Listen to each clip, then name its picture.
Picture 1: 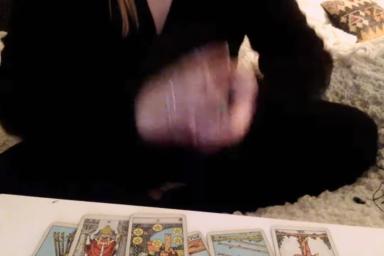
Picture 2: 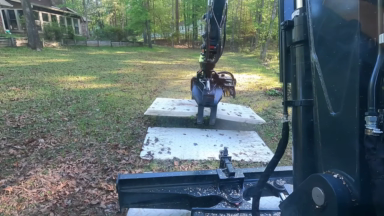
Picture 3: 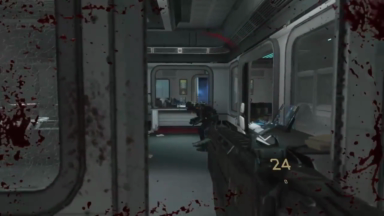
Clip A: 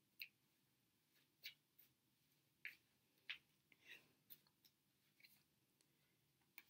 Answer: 1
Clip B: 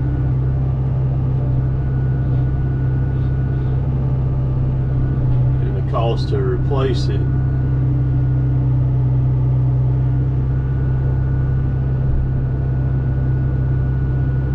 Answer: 2